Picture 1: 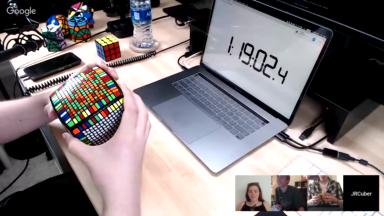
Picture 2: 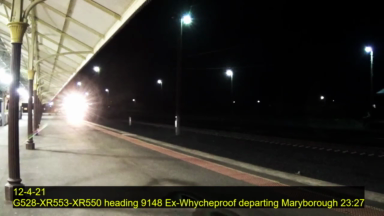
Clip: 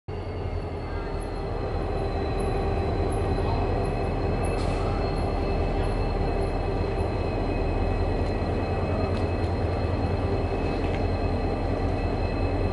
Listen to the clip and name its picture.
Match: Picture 2